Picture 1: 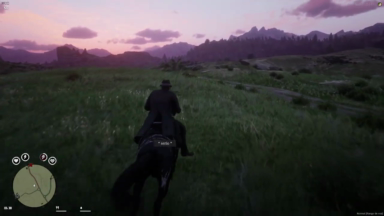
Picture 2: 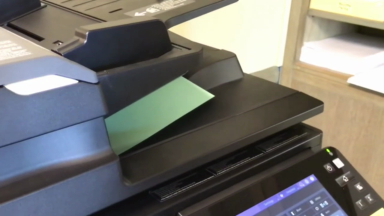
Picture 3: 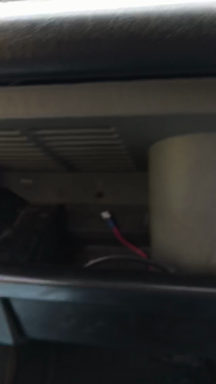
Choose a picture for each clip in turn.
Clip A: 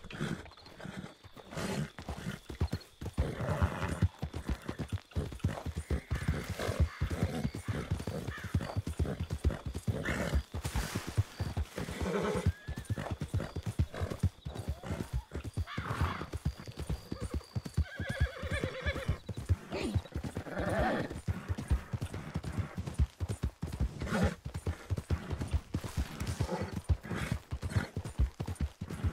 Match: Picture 1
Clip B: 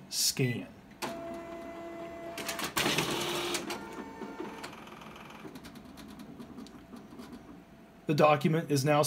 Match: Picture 2